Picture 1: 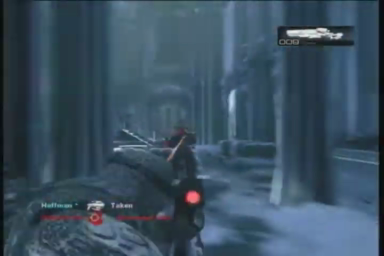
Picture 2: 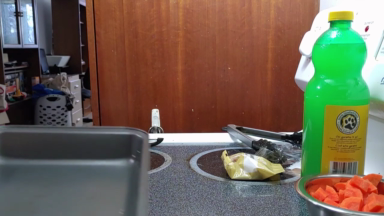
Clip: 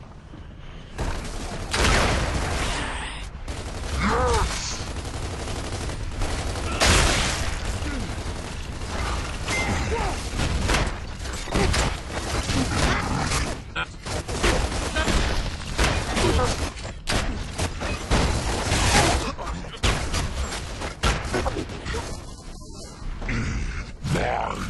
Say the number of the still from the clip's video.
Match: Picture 1